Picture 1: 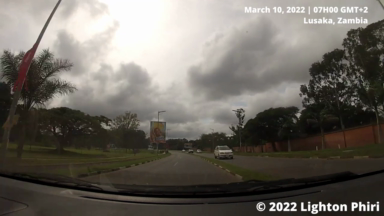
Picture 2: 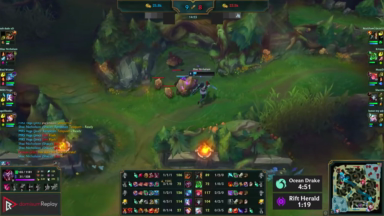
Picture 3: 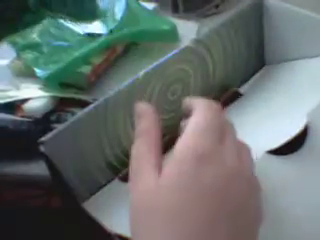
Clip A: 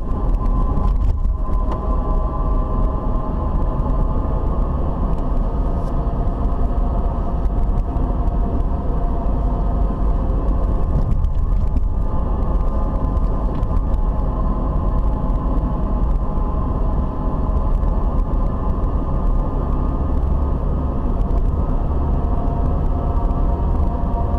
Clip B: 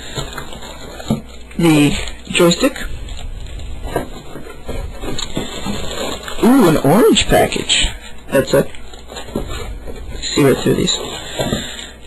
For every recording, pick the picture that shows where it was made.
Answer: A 1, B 3